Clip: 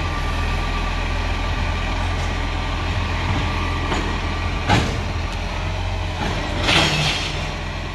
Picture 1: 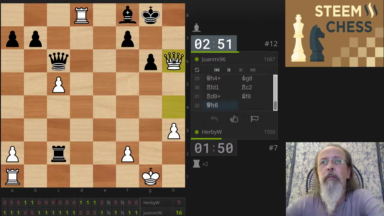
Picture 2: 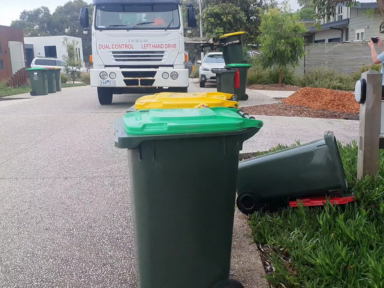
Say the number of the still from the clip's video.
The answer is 2